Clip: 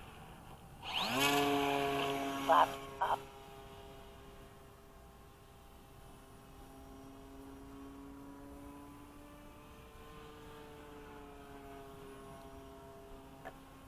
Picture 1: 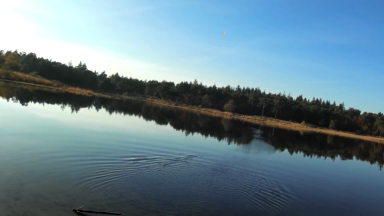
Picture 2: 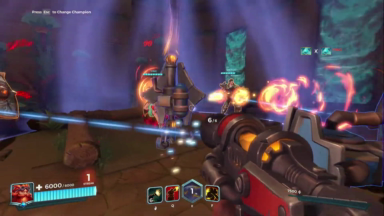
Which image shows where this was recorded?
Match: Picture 1